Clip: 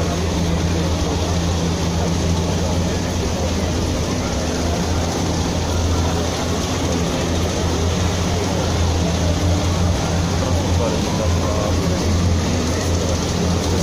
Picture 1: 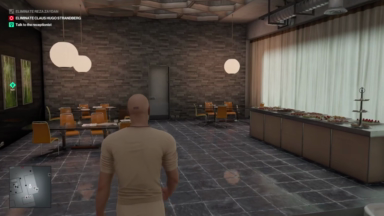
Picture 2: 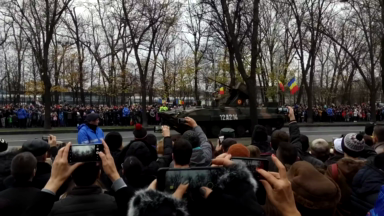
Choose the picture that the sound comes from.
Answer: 2